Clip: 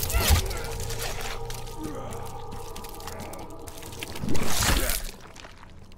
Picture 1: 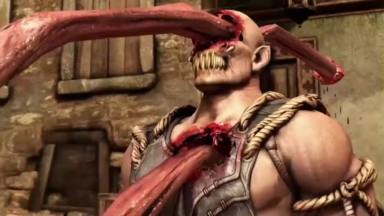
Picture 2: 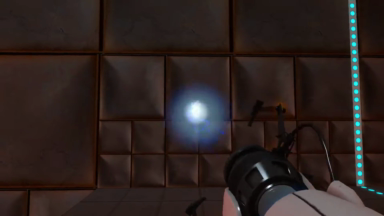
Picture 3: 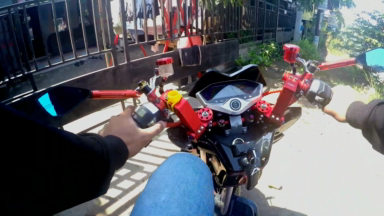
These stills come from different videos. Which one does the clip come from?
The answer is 1